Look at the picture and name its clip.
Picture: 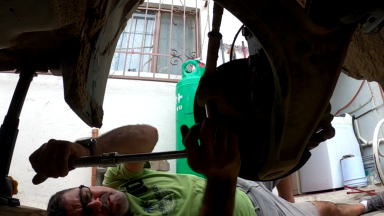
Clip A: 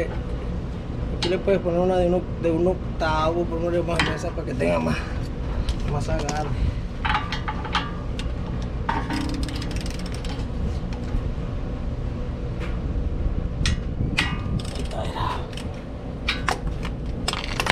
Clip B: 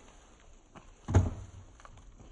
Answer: A